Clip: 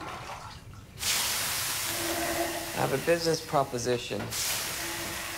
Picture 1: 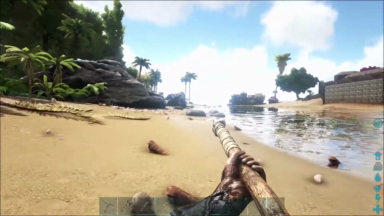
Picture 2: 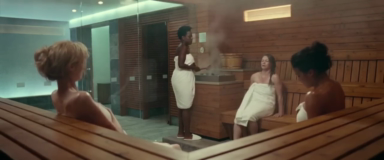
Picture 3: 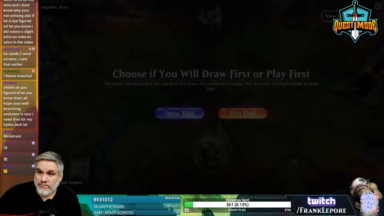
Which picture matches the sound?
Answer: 2